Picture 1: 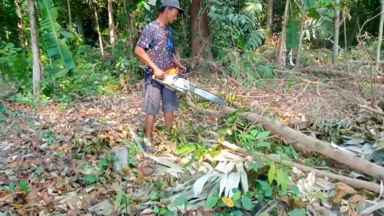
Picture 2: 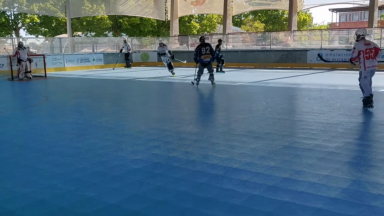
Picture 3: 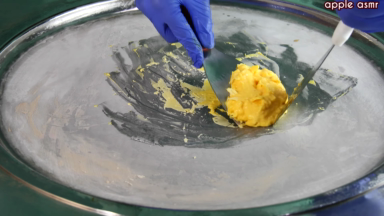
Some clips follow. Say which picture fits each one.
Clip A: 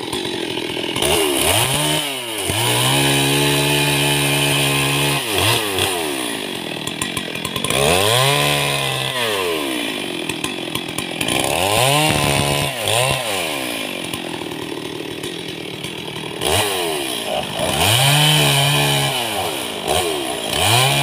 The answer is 1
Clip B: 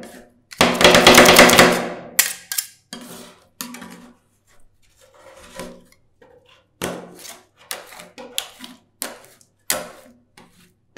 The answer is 3